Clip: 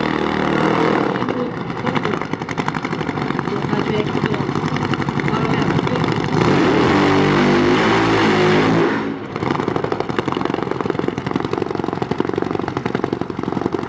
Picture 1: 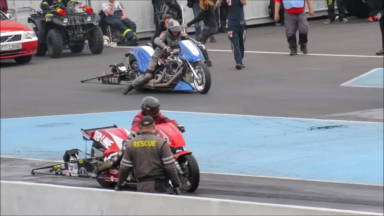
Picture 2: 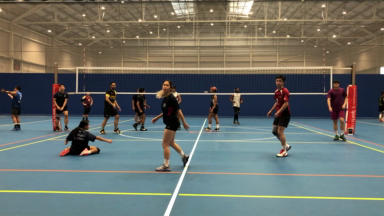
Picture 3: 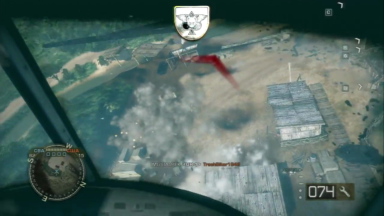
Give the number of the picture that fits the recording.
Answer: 1